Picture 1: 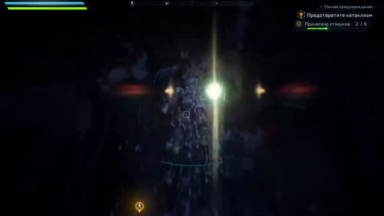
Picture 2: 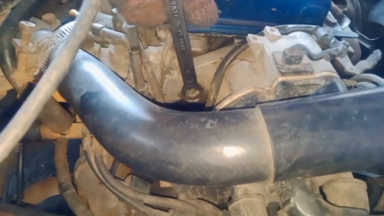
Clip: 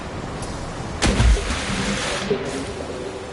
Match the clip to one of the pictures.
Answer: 1